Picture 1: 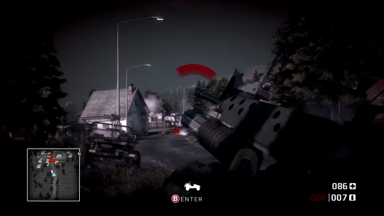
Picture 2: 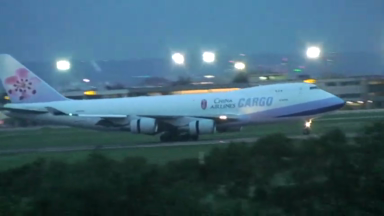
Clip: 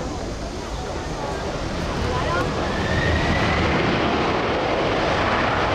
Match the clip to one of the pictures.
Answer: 2